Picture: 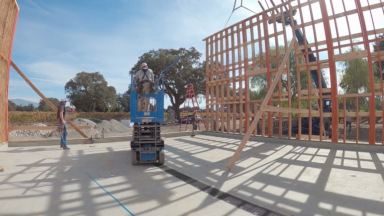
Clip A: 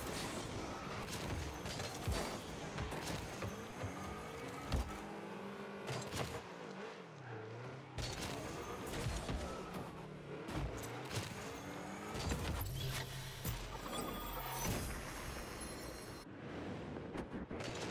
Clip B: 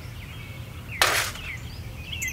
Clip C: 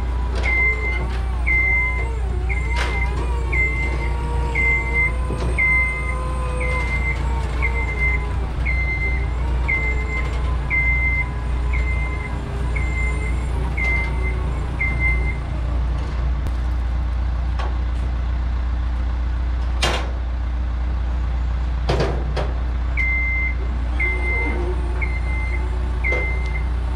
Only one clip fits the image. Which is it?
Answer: C